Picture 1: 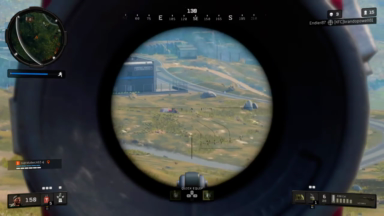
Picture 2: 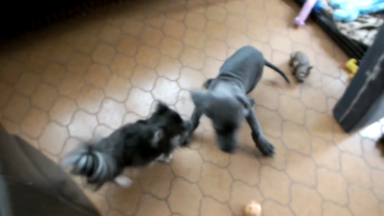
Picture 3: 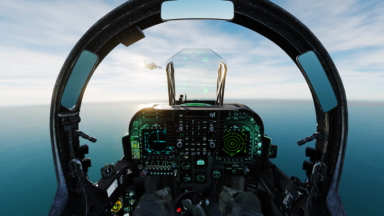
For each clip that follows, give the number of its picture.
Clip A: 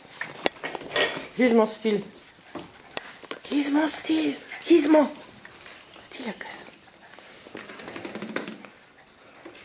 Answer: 2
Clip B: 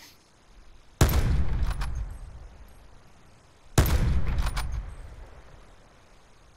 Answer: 1